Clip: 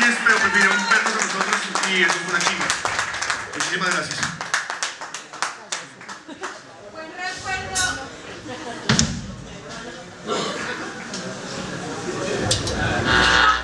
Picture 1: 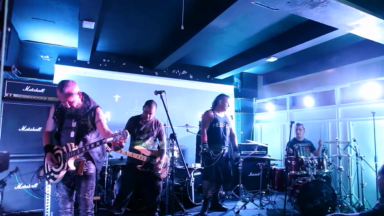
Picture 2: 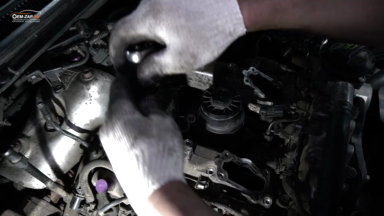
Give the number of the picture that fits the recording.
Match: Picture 1